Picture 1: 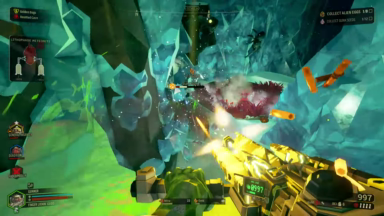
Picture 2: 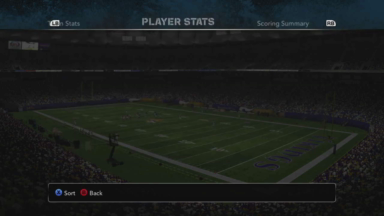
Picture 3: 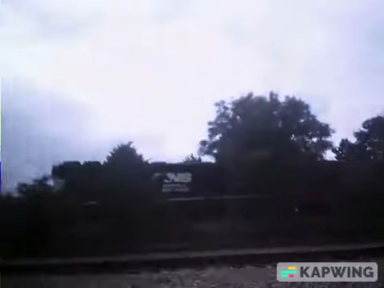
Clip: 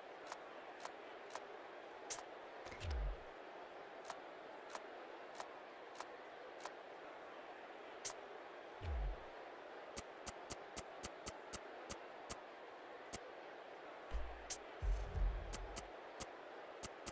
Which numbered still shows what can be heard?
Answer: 2